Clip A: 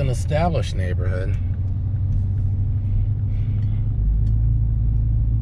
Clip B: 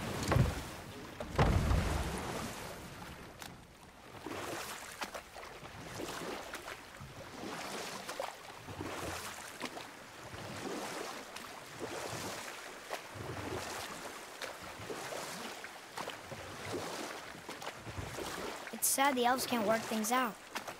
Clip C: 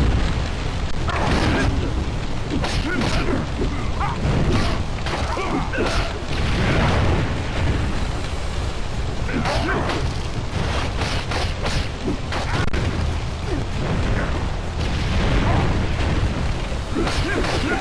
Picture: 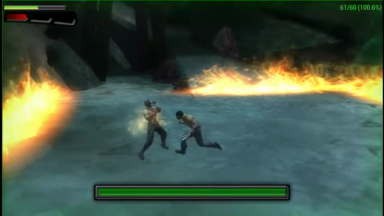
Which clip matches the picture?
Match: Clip C